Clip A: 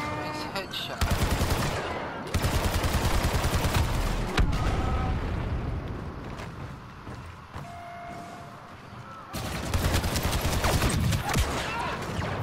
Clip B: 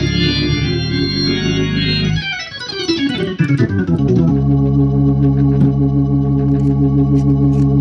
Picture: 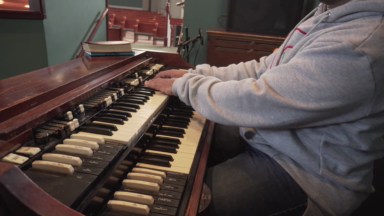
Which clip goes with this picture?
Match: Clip B